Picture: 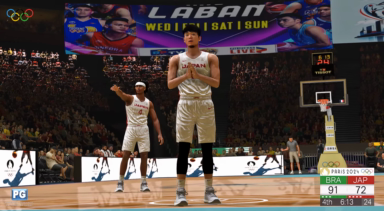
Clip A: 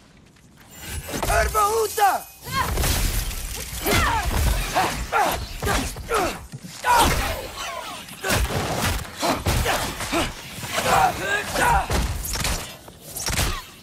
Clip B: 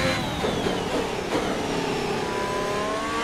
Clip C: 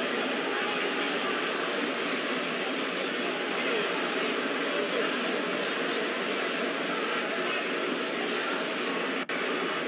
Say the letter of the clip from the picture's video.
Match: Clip C